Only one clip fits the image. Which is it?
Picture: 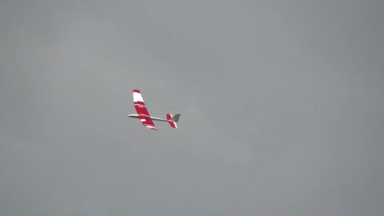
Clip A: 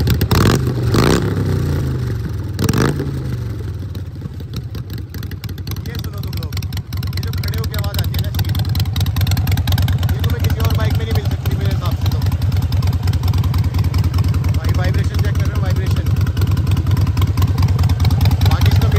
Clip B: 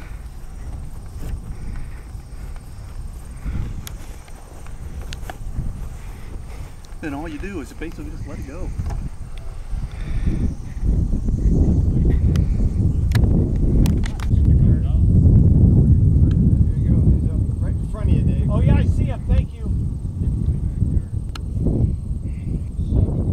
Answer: B